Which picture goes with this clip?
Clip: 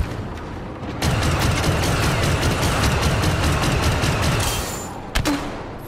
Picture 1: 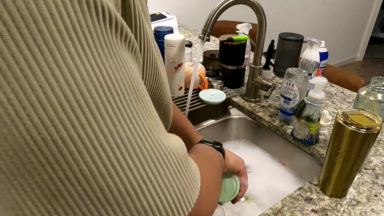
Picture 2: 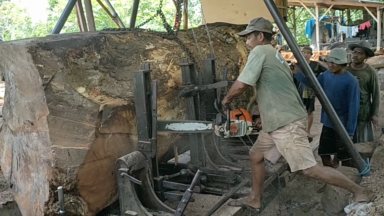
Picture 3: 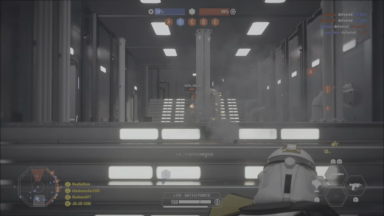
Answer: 3